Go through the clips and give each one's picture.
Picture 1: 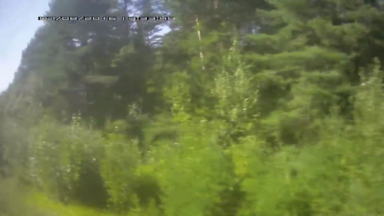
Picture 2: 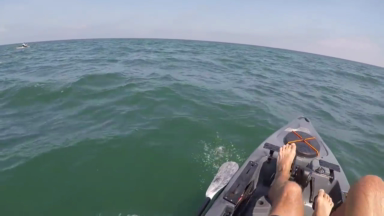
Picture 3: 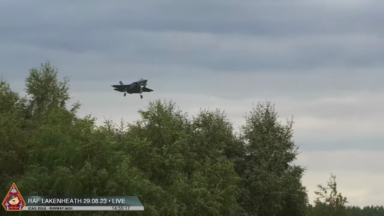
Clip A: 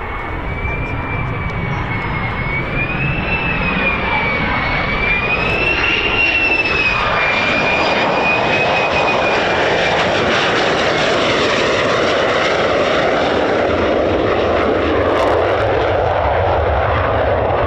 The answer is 3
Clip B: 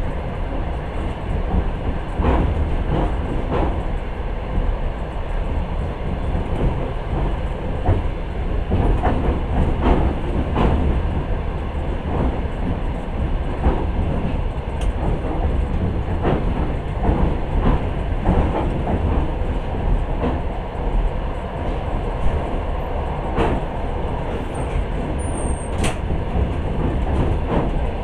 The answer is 1